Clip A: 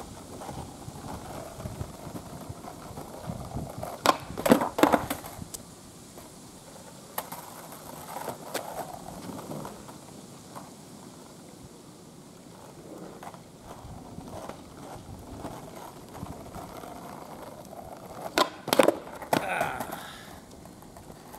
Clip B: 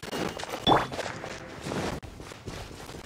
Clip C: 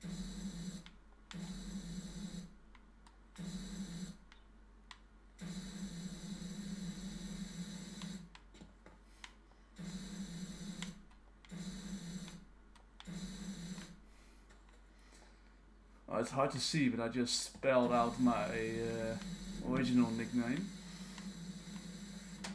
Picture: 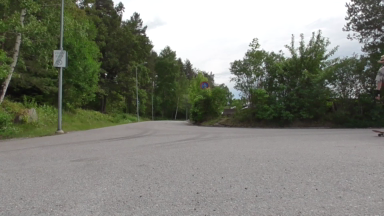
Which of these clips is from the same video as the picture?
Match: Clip A